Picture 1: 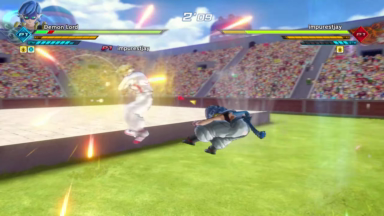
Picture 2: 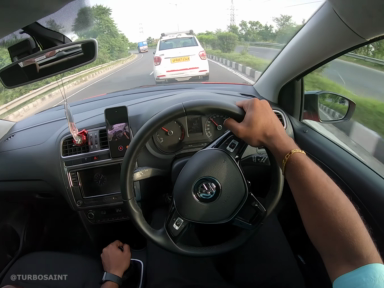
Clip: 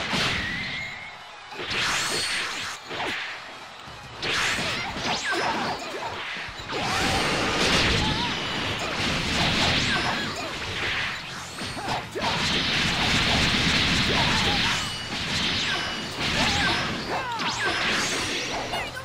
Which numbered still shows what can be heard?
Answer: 1